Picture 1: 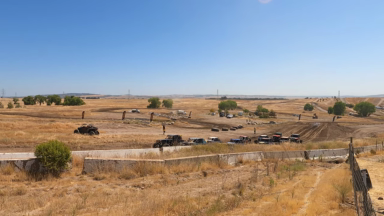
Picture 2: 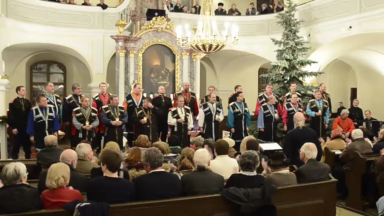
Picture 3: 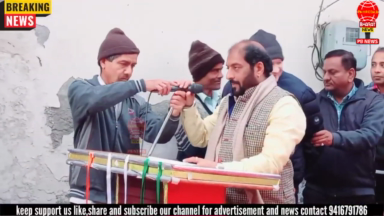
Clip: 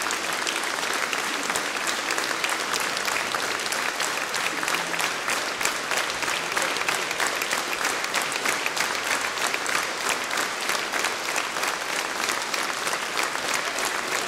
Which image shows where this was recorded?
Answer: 2